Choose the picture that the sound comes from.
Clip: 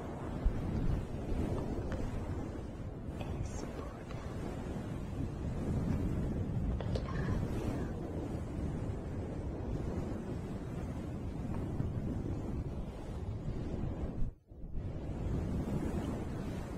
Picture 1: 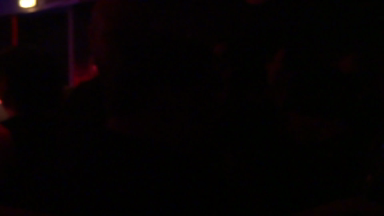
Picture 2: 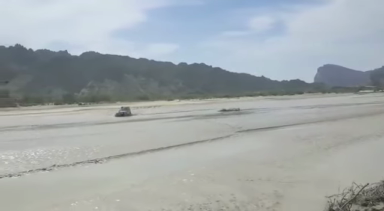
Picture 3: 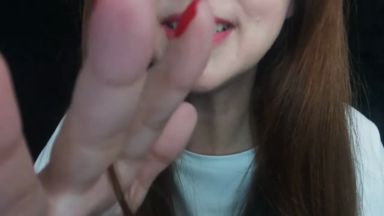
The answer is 3